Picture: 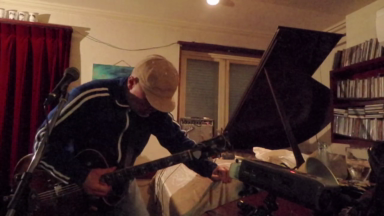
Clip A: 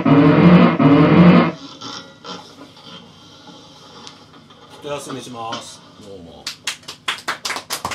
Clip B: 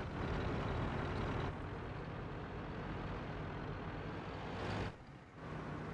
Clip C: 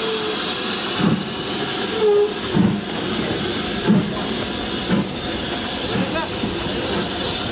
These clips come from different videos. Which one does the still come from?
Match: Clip A